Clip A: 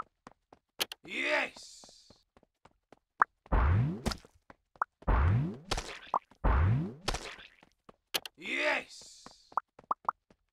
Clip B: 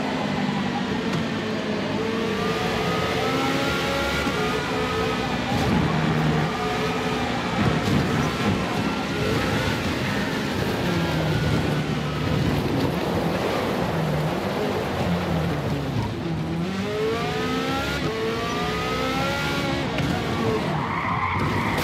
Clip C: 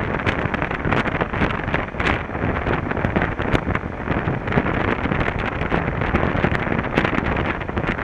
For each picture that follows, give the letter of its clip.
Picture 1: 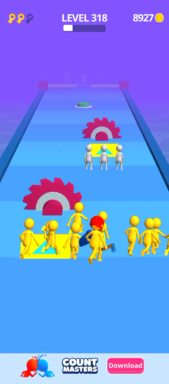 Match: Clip A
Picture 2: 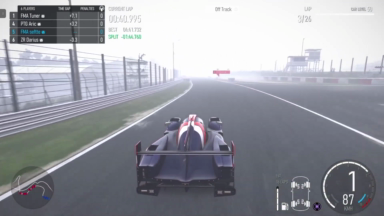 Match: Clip B